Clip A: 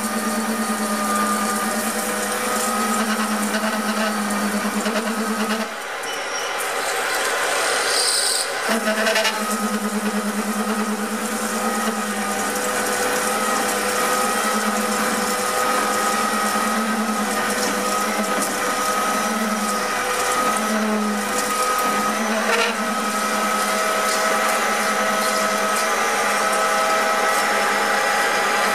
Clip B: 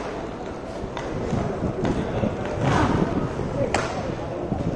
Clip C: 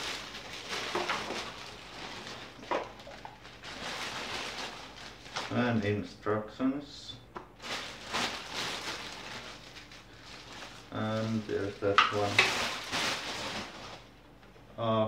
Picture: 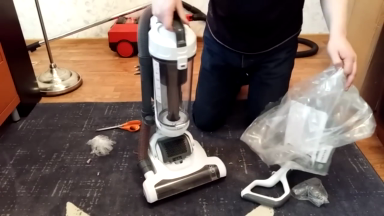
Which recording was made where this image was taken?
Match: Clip C